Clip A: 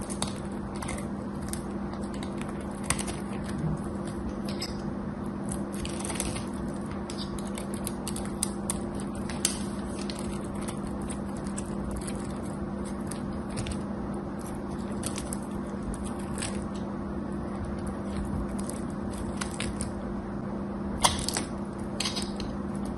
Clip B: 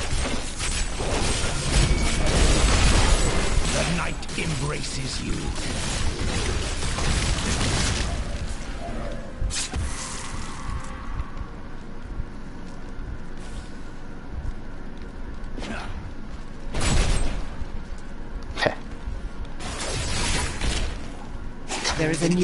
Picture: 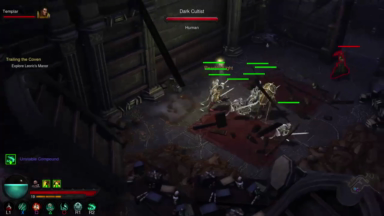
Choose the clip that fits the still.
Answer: B